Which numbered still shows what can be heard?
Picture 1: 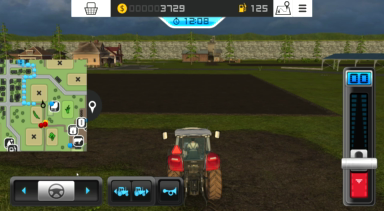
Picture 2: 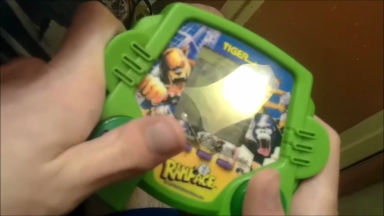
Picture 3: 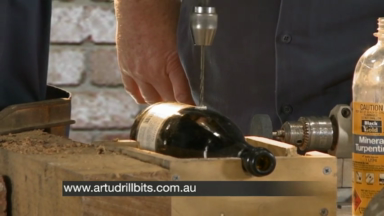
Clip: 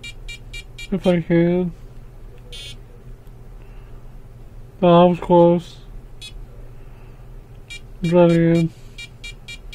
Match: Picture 2